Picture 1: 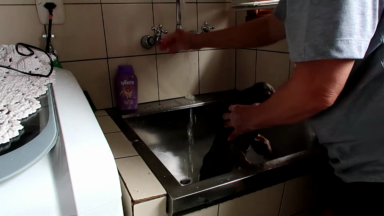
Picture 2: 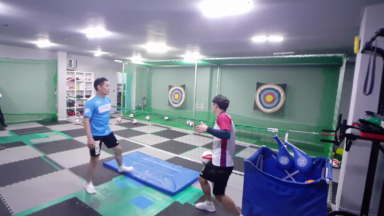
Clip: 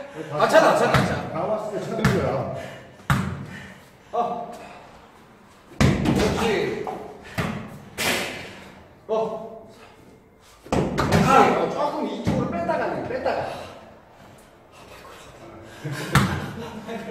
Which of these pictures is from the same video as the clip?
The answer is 2